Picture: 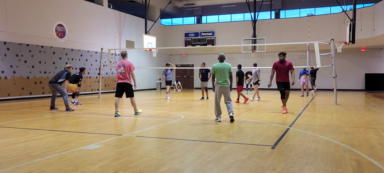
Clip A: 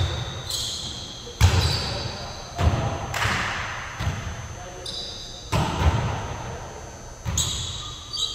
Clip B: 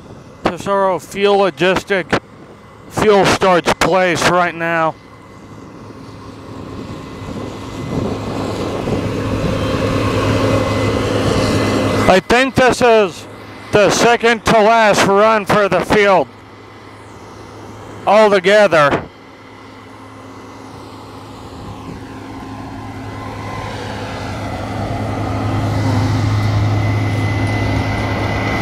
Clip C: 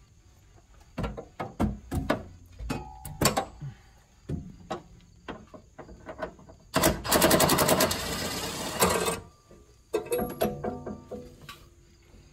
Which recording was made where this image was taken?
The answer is A